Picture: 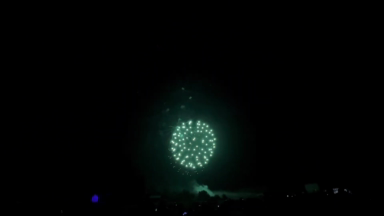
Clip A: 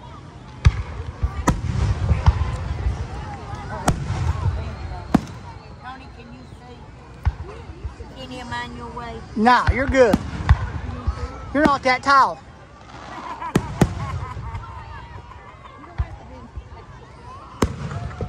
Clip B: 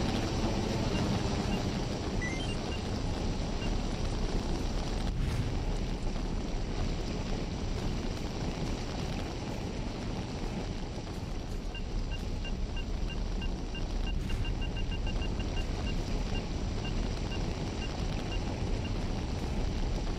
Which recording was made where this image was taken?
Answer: A